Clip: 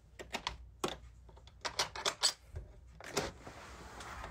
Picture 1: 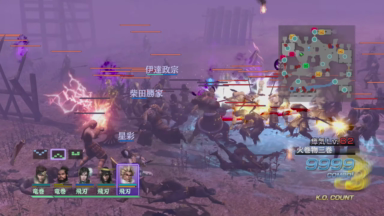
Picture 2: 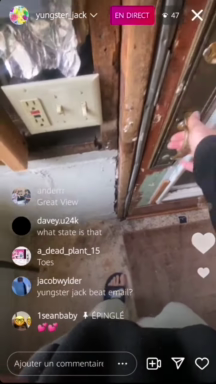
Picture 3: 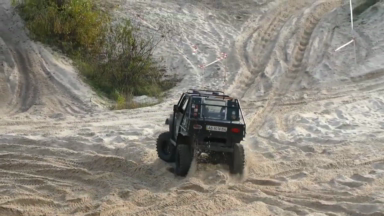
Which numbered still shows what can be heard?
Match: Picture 2